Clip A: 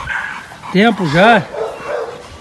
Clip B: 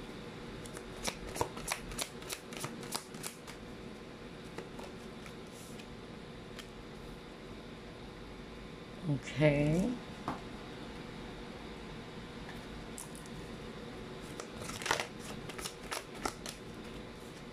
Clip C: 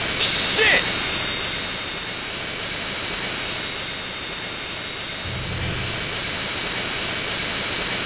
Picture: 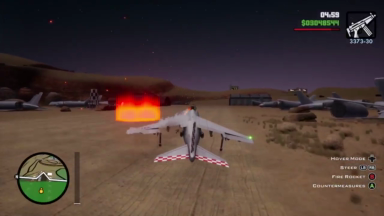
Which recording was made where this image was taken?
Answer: C